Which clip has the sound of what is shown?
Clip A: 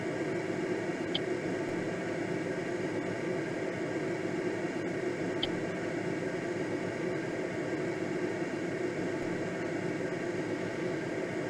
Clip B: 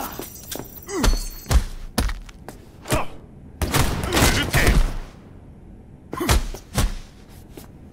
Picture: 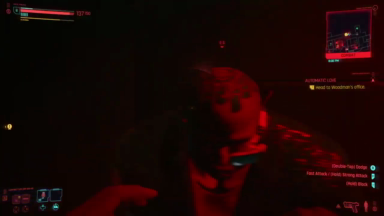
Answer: B